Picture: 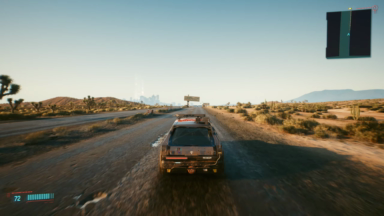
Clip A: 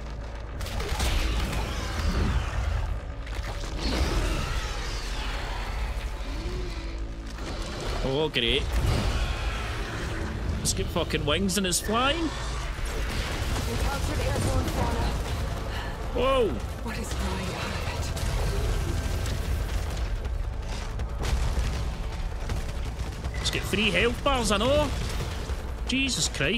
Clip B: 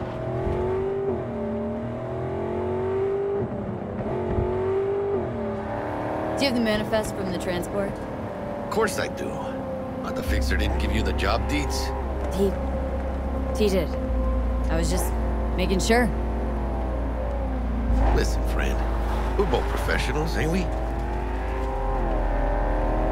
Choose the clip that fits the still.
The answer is B